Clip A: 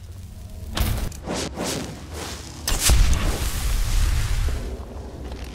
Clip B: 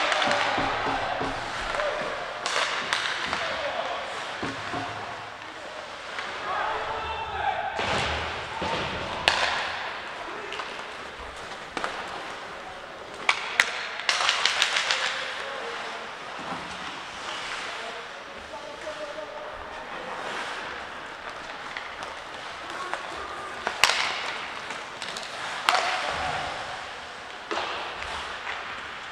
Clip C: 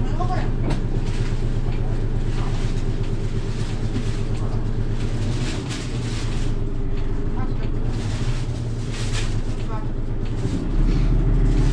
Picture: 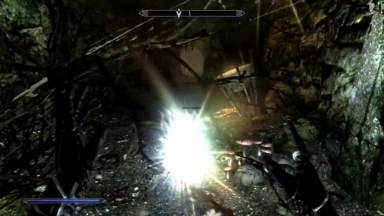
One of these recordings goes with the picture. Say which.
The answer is A